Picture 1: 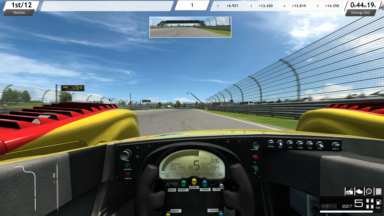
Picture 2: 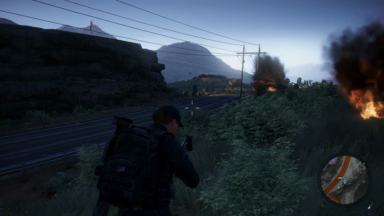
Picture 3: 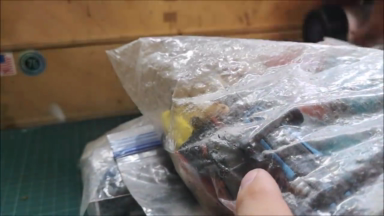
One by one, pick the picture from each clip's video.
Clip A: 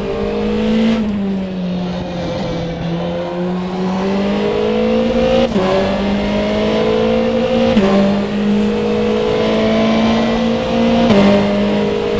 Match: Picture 1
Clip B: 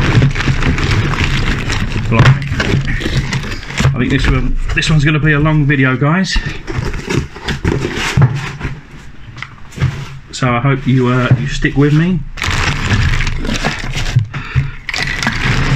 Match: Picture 3